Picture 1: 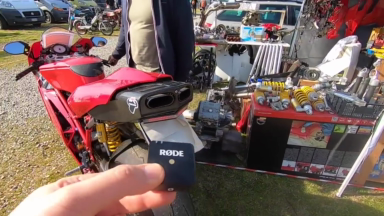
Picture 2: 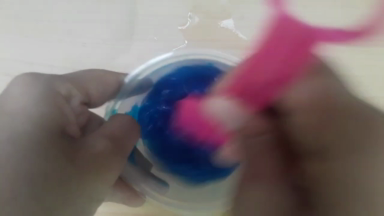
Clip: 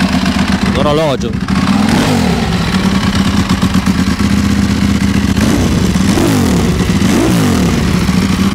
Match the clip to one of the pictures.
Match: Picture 1